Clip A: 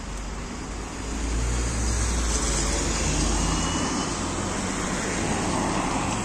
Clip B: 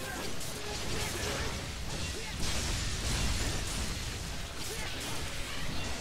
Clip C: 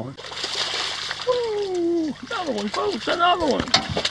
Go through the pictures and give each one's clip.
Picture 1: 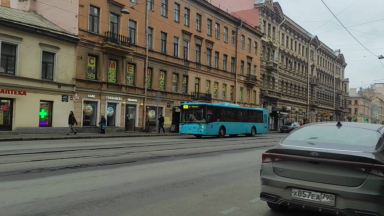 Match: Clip A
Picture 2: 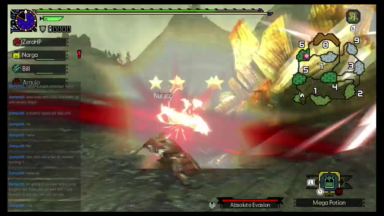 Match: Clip B